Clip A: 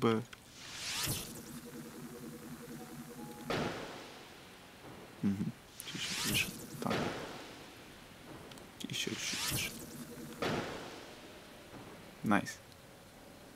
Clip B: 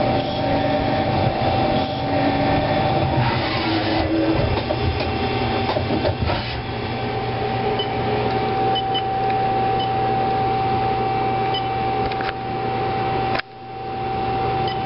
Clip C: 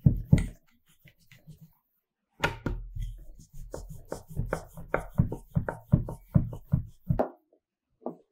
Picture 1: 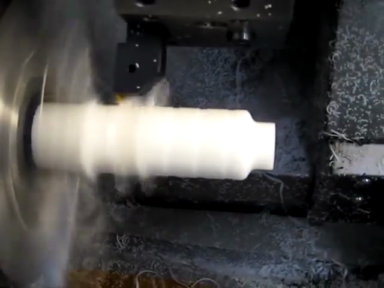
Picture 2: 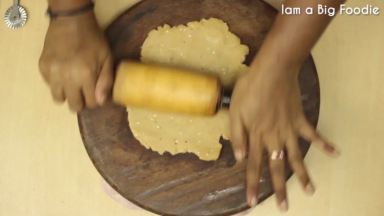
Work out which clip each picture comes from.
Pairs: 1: B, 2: C